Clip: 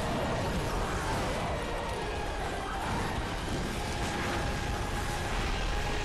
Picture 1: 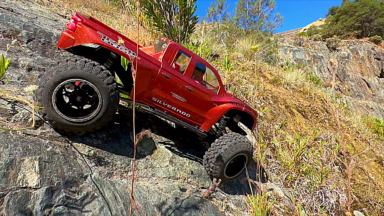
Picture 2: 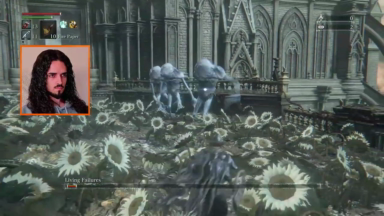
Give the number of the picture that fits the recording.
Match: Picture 2